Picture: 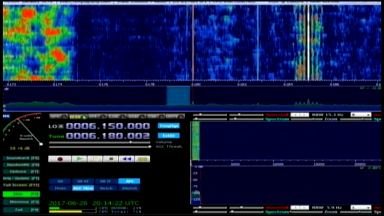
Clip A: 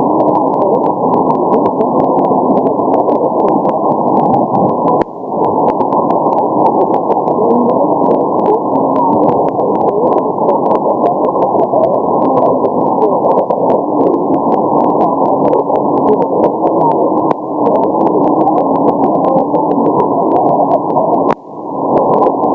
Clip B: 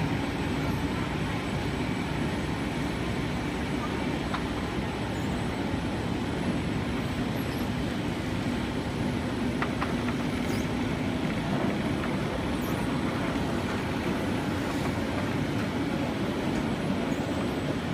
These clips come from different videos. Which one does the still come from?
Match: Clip A